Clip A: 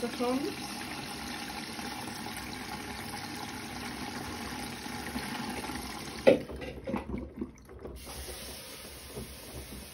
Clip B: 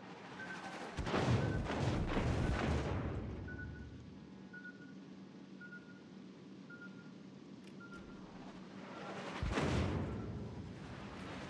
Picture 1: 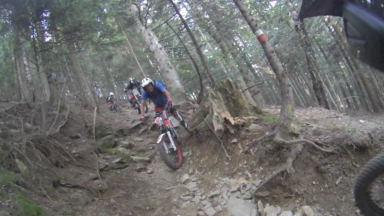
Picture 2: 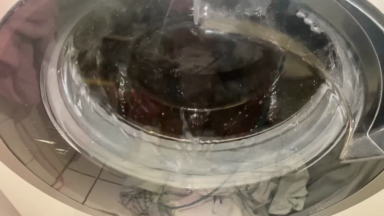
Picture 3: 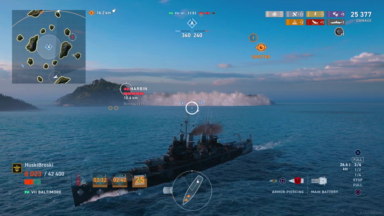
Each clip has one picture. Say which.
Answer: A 2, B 3